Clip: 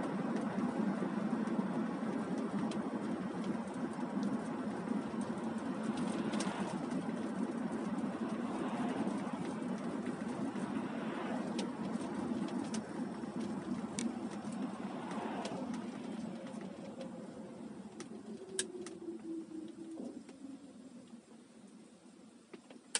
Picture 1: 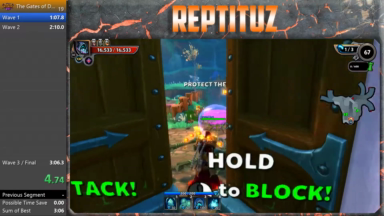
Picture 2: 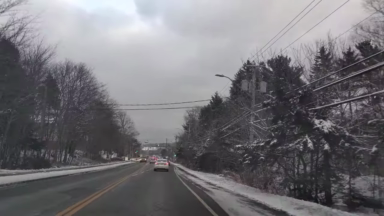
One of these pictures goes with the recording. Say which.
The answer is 2